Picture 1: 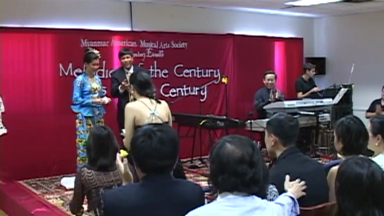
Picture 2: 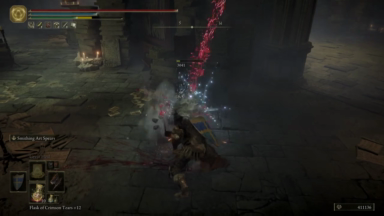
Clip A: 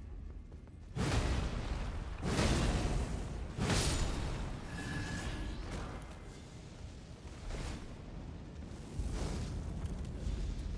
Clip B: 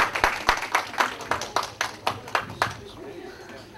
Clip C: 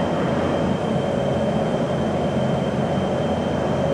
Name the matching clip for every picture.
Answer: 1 B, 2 A